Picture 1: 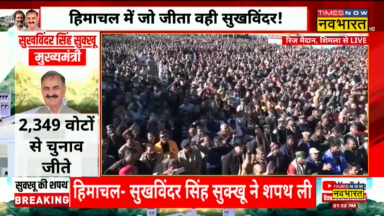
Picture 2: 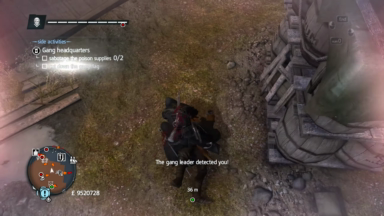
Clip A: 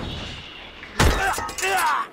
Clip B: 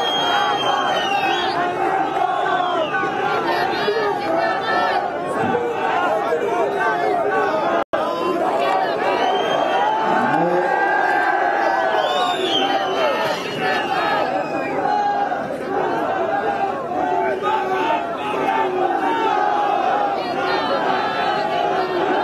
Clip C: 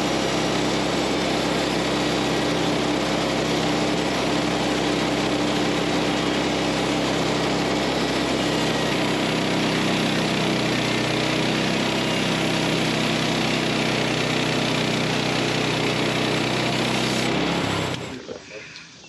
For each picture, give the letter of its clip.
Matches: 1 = B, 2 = A